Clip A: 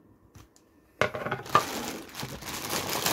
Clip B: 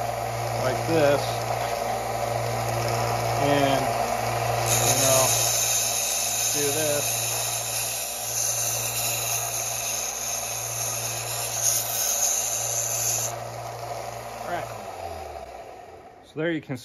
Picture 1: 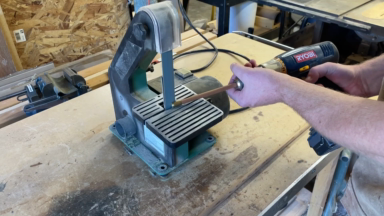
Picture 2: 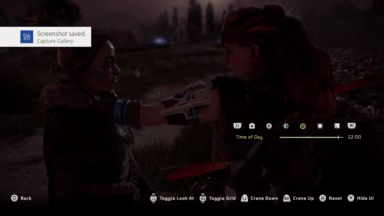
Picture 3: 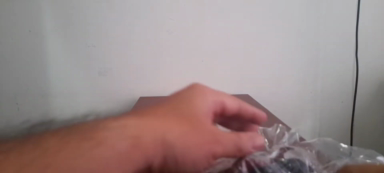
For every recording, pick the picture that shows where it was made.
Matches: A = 3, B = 1